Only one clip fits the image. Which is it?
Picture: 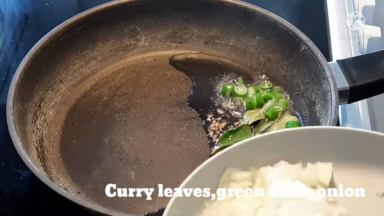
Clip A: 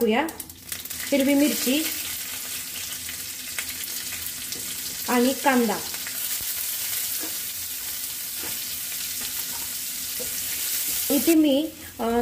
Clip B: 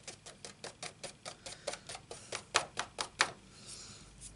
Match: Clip A